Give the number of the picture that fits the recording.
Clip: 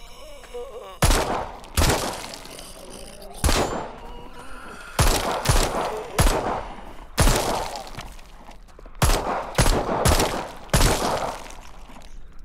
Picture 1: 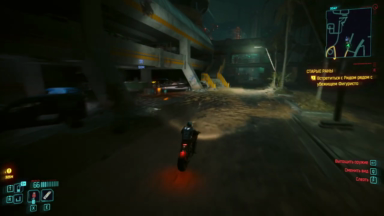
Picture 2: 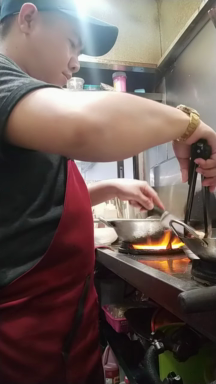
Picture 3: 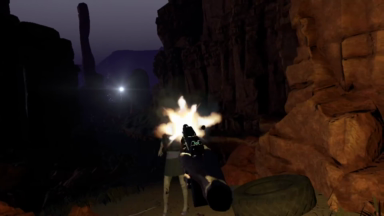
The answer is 3